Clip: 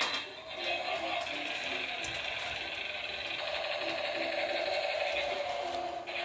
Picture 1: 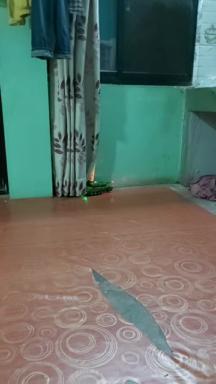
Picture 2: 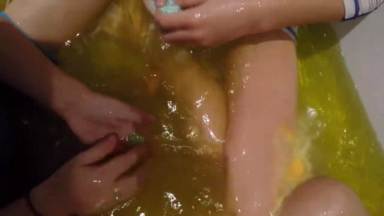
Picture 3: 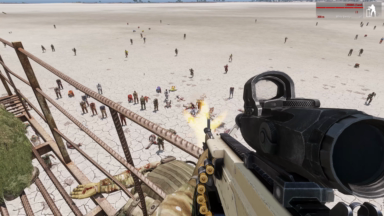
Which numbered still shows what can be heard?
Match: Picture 1